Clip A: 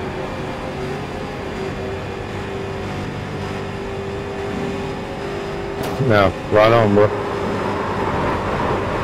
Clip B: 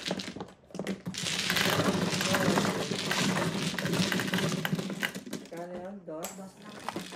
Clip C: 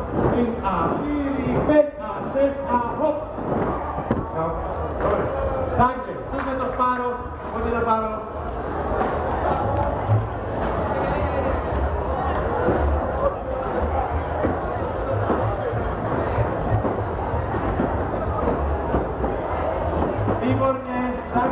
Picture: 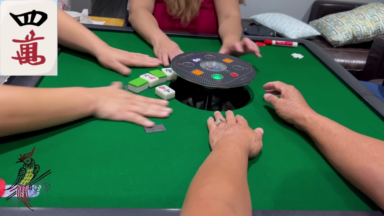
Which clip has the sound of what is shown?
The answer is B